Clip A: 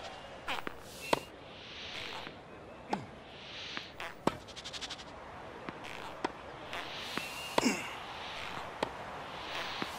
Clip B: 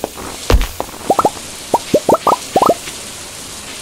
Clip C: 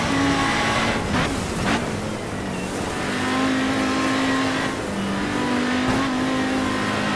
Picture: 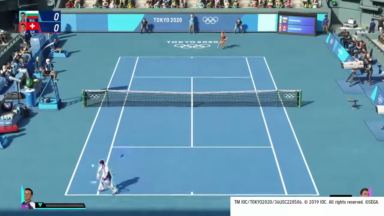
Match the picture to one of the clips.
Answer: A